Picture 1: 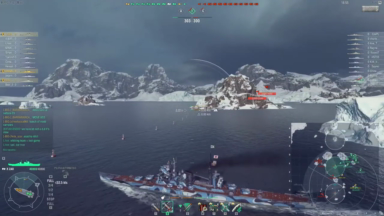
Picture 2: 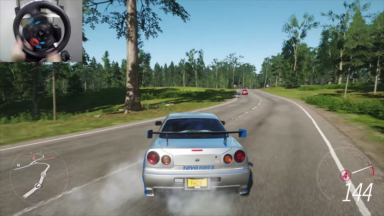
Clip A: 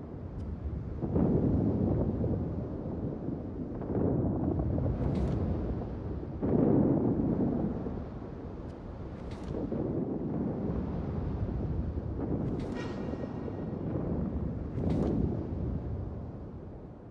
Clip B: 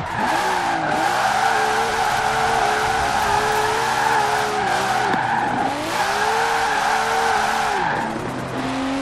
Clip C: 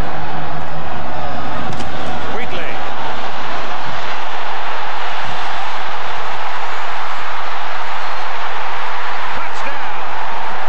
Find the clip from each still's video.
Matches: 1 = A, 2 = B